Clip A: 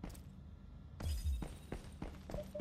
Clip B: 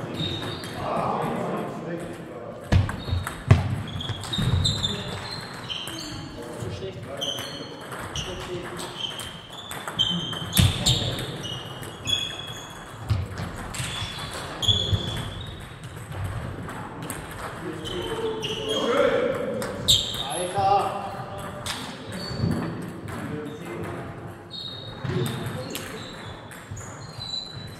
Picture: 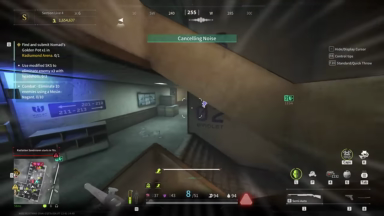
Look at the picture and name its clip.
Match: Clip A